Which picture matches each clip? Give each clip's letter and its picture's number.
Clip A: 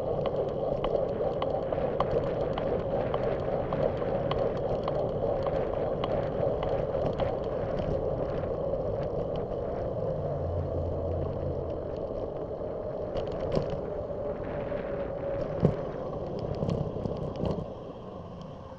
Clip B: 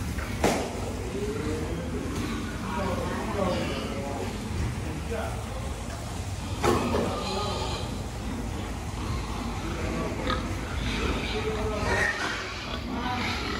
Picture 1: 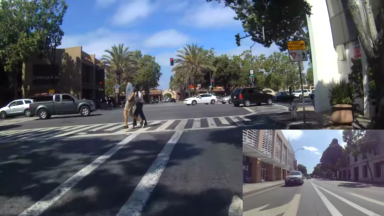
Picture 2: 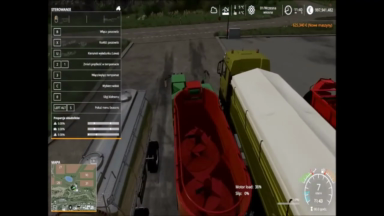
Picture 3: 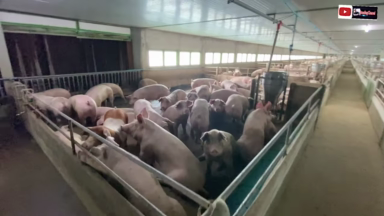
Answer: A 1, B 3